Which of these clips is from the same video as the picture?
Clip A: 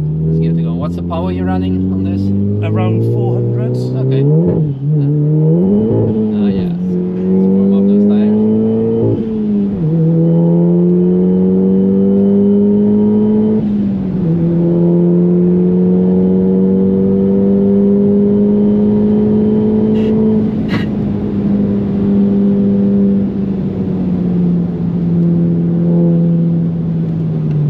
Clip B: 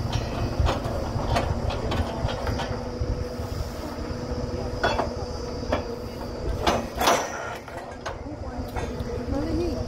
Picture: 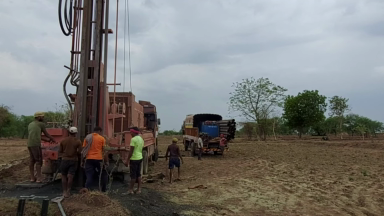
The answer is B